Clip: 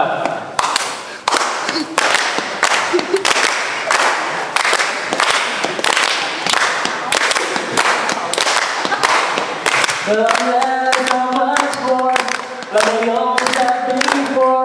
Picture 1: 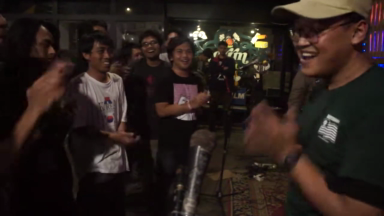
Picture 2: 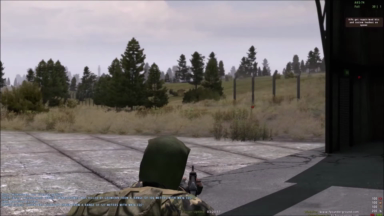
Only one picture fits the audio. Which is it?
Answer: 1